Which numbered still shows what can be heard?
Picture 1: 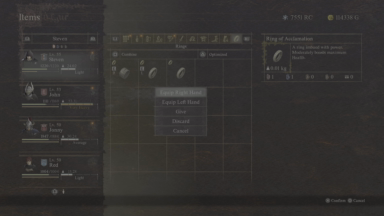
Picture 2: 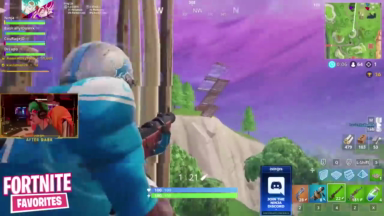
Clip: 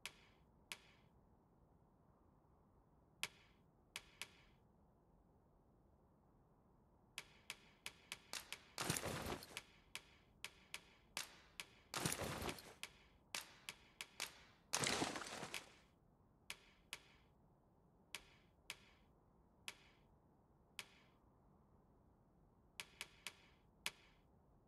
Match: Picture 1